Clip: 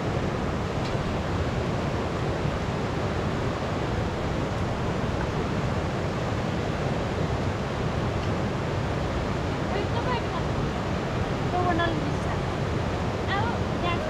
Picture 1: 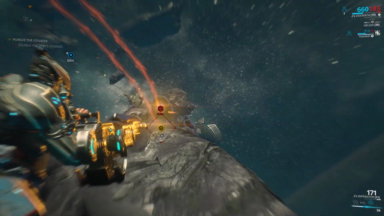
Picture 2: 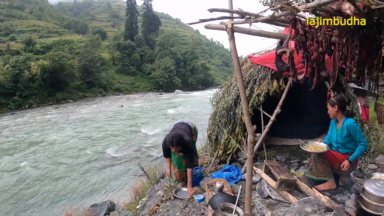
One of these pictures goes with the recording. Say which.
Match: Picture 2